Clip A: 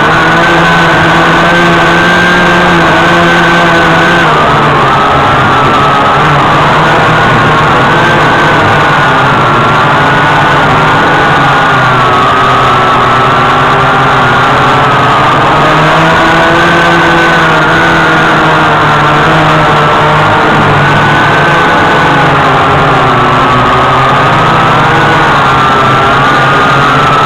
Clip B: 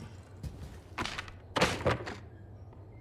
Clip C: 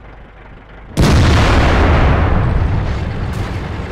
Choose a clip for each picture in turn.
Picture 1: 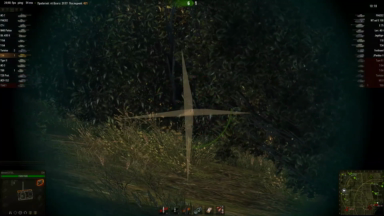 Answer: C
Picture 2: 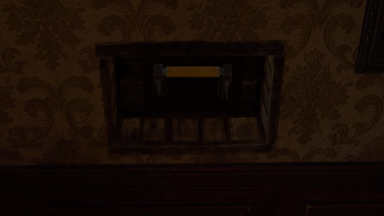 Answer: B